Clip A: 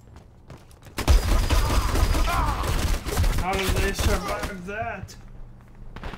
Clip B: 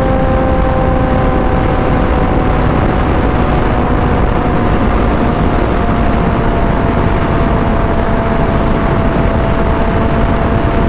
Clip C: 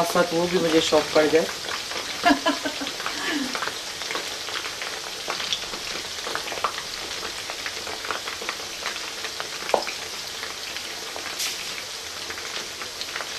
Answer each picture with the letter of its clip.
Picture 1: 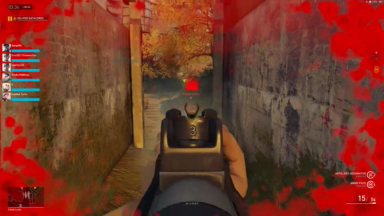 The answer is A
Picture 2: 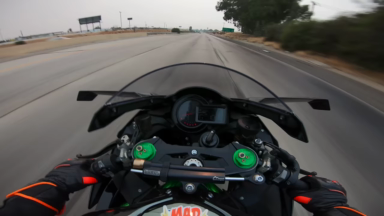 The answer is B